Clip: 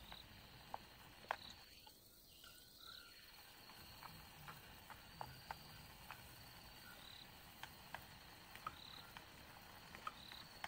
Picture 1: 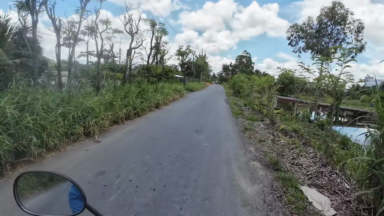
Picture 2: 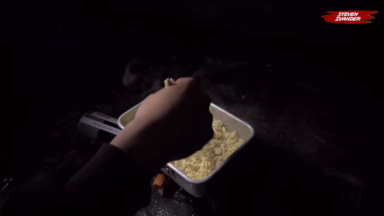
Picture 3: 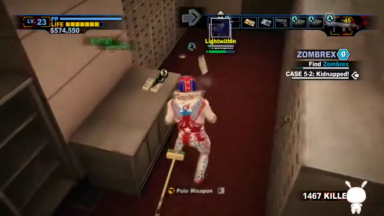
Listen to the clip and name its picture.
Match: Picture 2